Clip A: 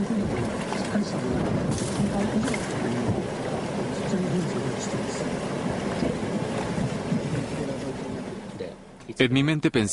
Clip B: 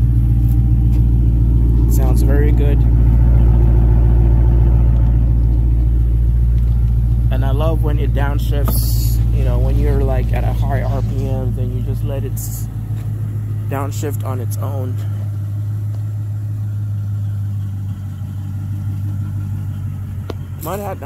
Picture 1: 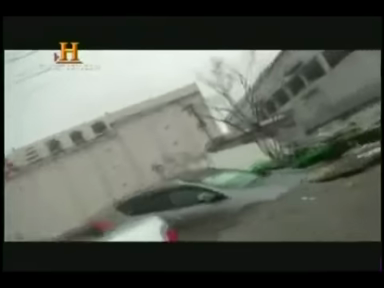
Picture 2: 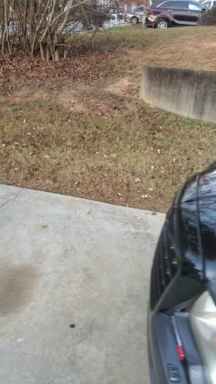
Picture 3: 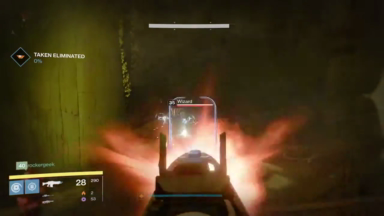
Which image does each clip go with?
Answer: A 1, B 2